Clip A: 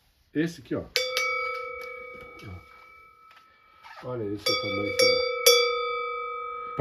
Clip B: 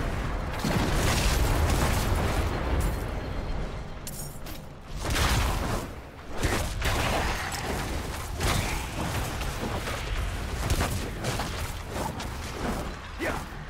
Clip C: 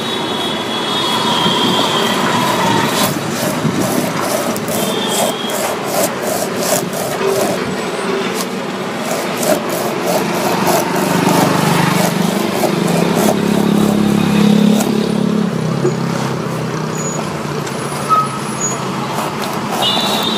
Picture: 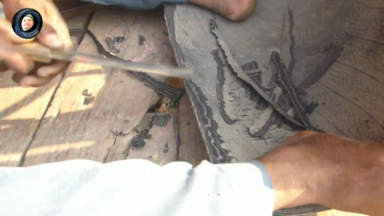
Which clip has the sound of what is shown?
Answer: C